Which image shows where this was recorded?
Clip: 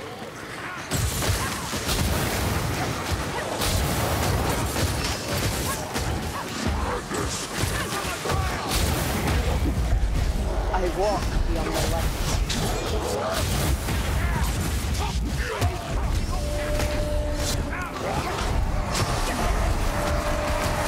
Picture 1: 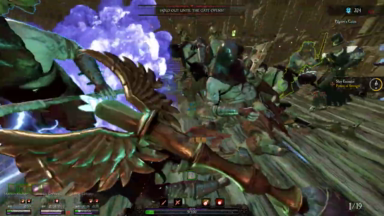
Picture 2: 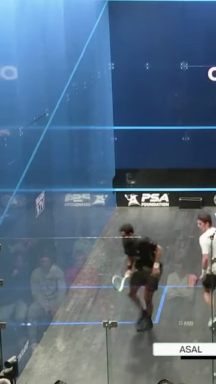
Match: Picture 1